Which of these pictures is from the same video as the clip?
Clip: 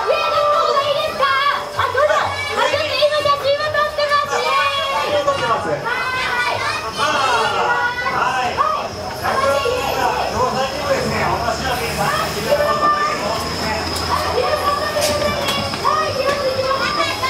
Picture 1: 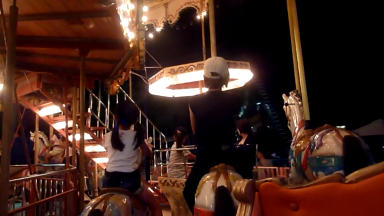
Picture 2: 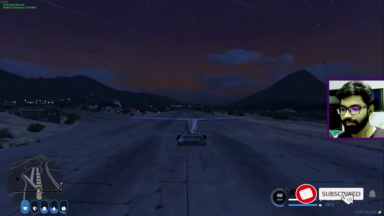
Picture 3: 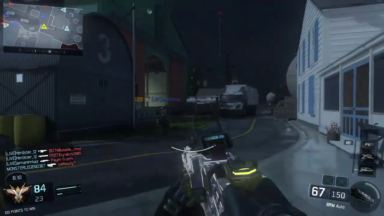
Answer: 1